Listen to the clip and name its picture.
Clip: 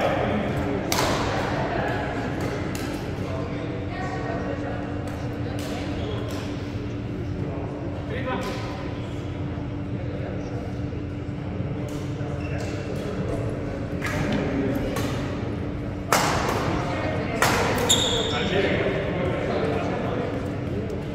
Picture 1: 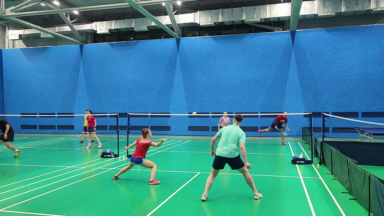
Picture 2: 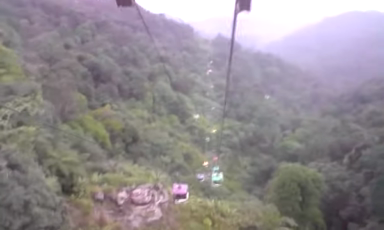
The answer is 1